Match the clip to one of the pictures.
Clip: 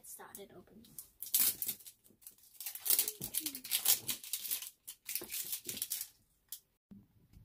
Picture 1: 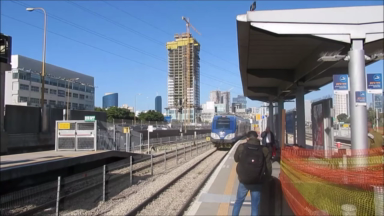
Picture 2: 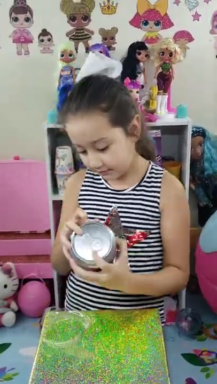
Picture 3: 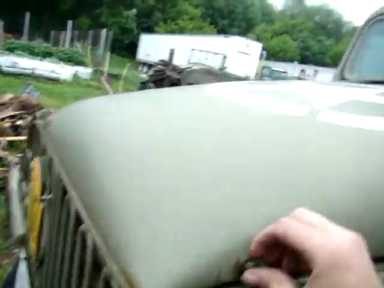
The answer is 2